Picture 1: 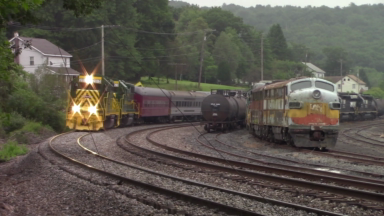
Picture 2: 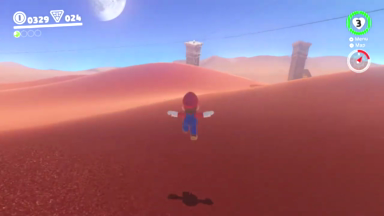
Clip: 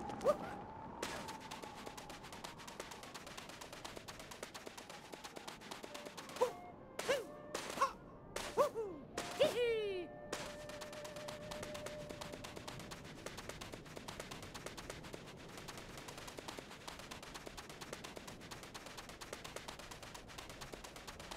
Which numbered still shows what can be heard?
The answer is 2